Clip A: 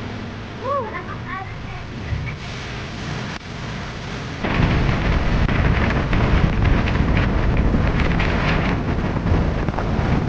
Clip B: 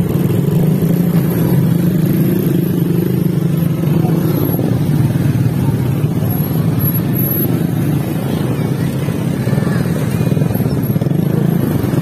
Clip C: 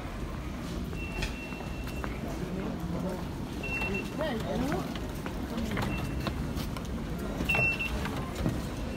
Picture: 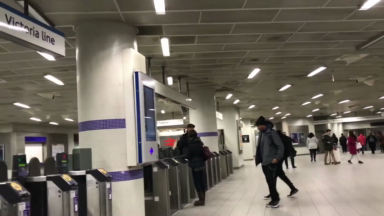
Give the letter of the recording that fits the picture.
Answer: C